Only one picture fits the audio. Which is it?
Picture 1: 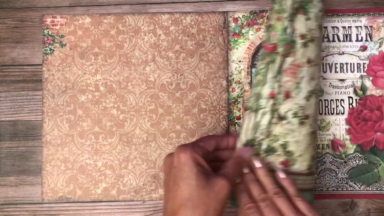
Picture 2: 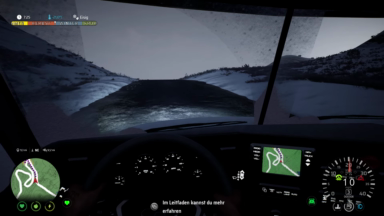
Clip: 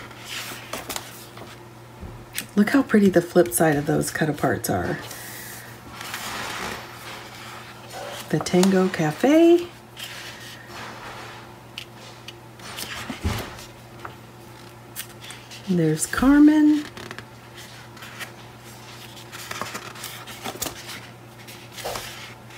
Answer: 1